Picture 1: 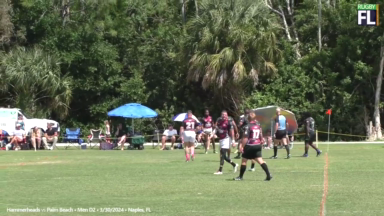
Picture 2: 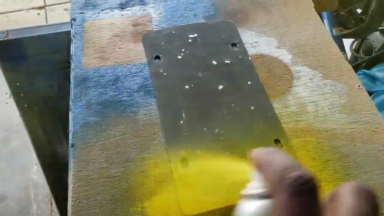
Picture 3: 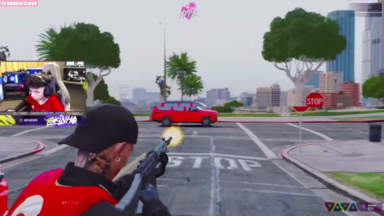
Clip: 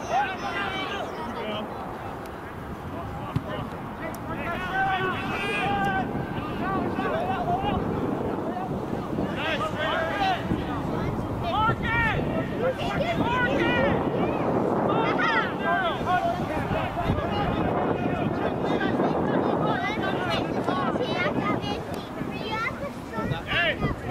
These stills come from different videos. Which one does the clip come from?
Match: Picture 1